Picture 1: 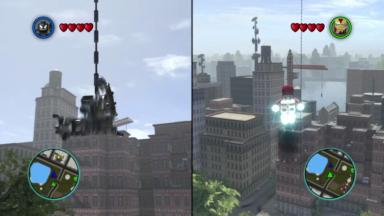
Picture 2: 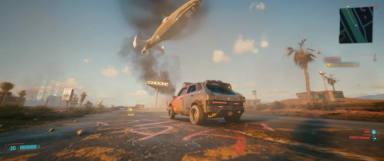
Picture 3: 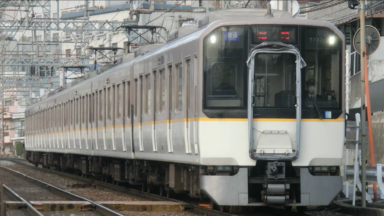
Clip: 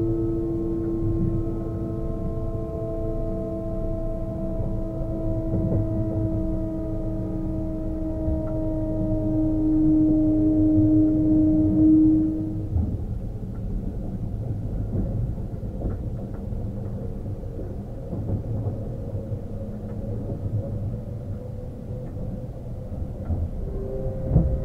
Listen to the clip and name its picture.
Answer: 3